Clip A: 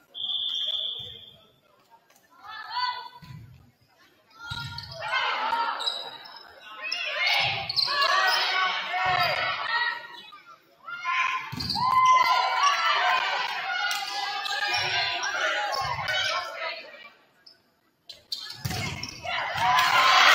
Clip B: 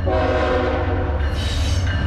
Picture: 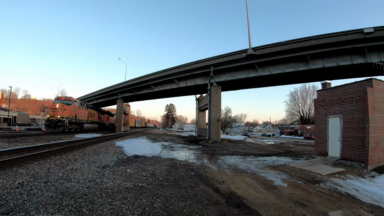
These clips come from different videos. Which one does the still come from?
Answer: B